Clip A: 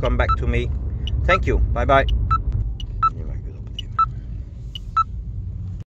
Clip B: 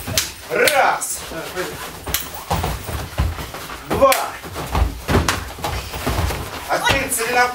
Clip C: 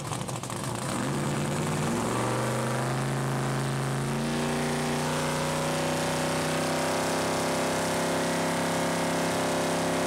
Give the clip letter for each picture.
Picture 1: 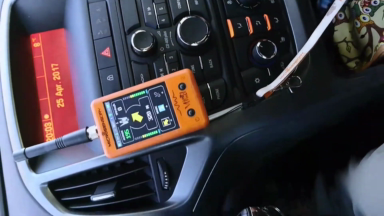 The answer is A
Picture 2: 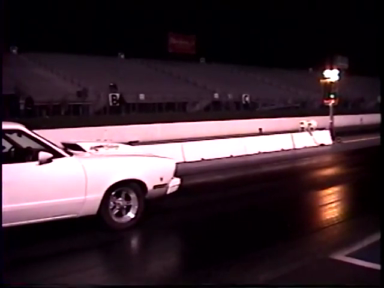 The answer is C